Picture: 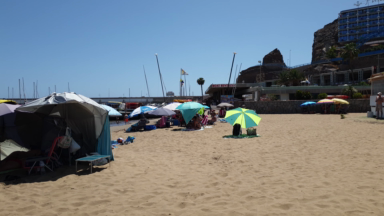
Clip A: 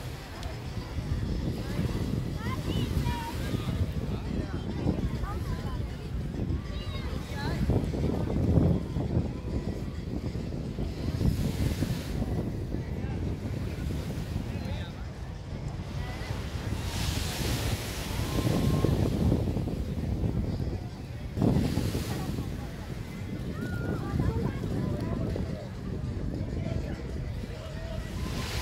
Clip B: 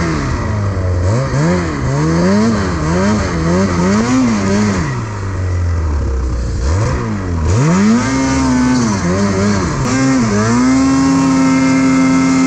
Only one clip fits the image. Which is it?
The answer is A